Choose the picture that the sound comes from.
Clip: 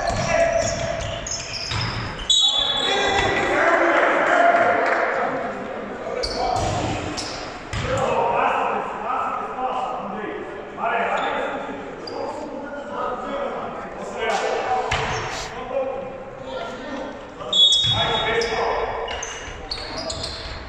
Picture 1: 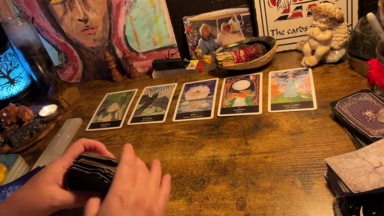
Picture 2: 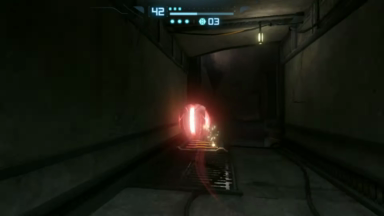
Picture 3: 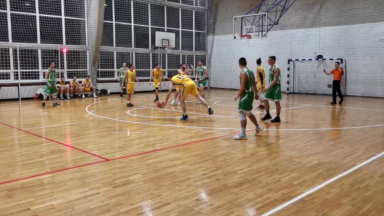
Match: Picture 3